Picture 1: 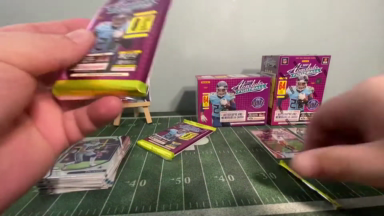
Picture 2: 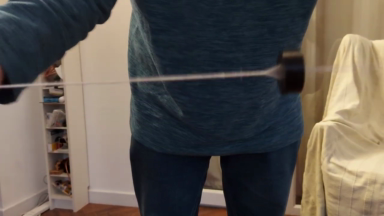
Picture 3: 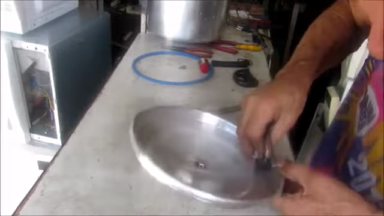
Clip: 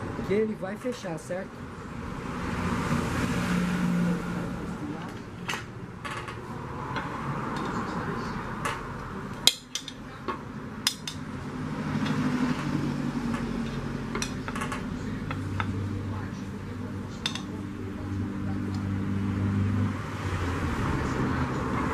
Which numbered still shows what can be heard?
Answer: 3